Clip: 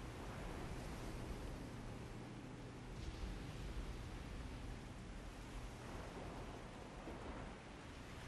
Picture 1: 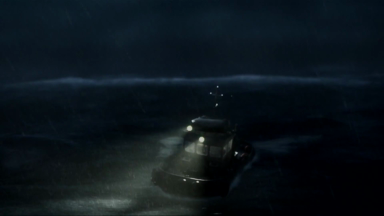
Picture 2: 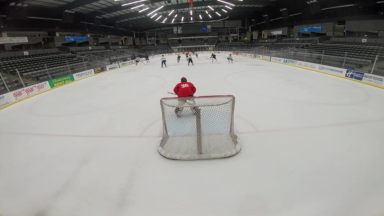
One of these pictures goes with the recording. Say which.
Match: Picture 1